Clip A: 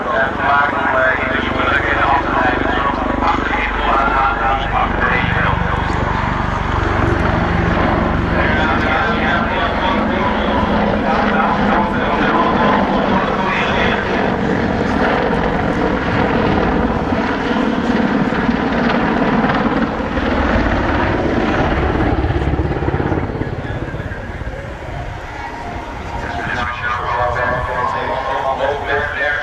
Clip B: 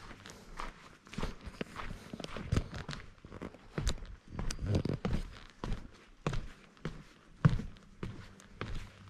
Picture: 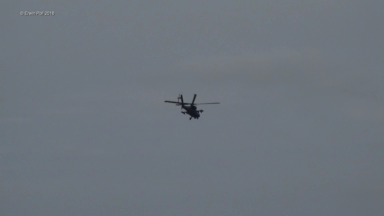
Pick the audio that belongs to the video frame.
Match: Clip A